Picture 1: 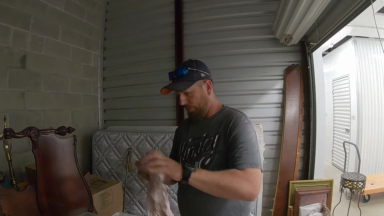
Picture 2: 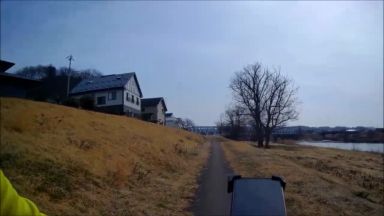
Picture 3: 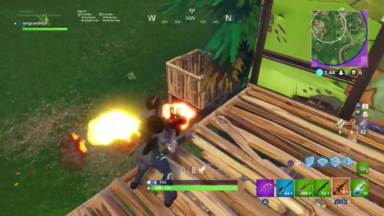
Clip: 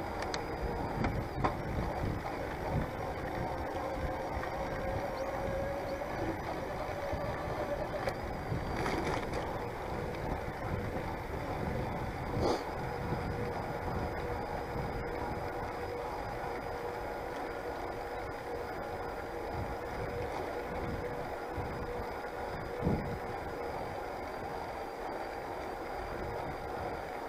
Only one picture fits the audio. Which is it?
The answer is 2